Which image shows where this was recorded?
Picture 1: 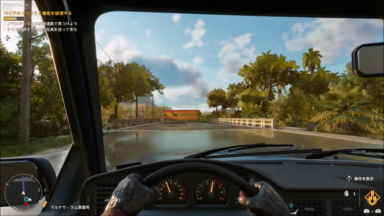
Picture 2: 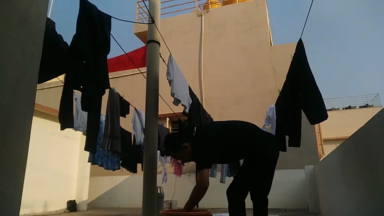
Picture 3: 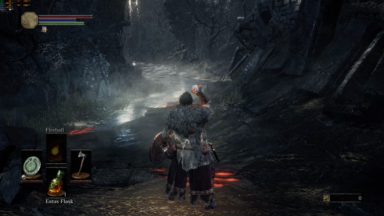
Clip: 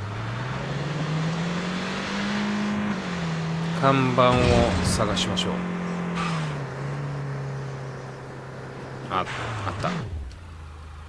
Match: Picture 1